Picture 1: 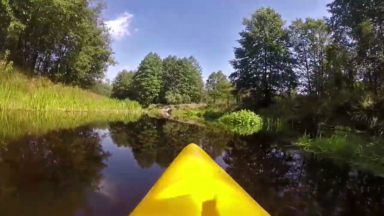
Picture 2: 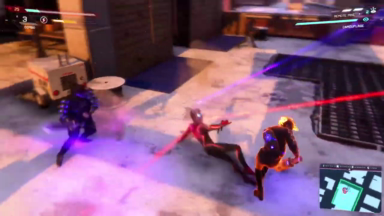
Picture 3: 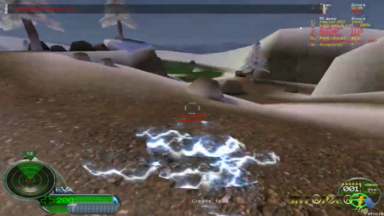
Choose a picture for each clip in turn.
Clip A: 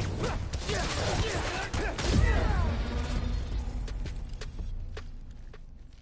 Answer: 2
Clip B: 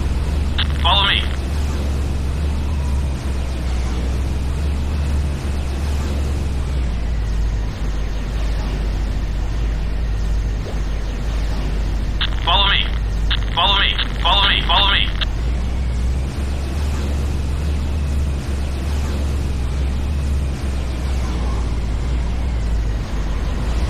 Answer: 3